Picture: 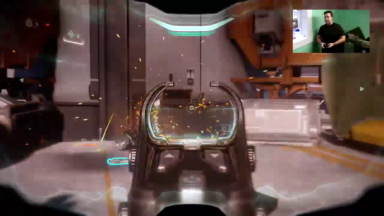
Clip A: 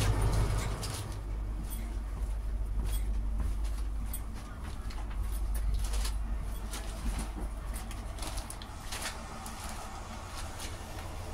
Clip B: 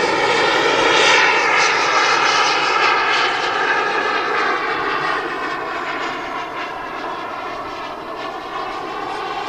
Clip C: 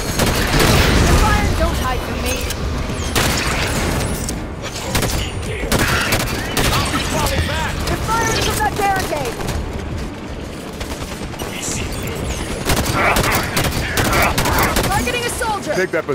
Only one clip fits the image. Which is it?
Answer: C